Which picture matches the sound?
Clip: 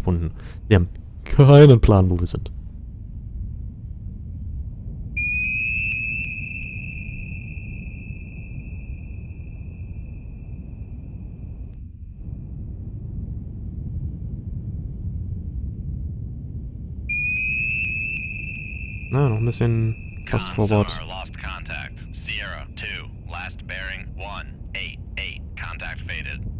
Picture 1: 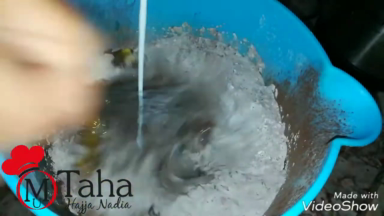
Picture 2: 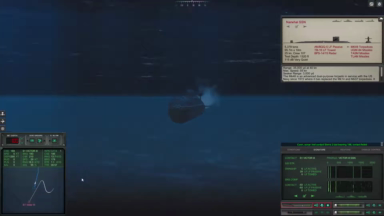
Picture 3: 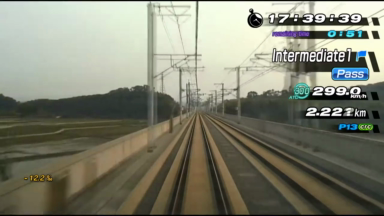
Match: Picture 2